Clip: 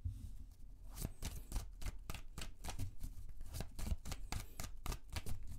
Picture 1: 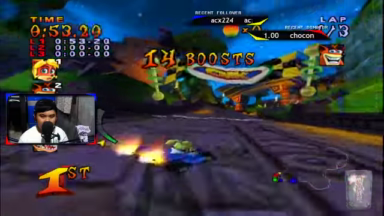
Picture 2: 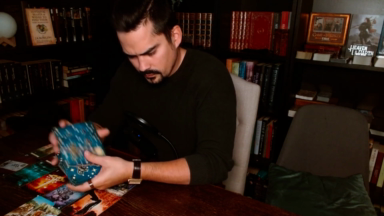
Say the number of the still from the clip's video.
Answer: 2